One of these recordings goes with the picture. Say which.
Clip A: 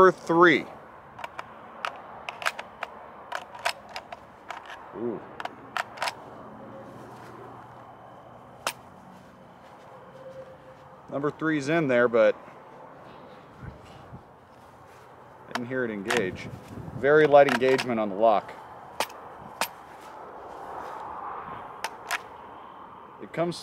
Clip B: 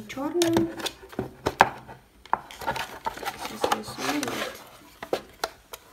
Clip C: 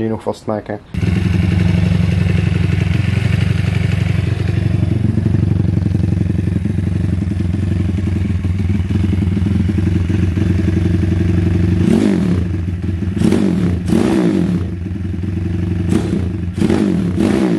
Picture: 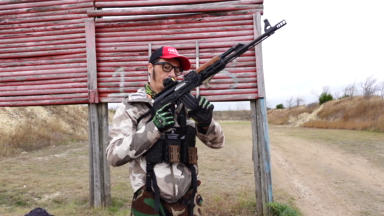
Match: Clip A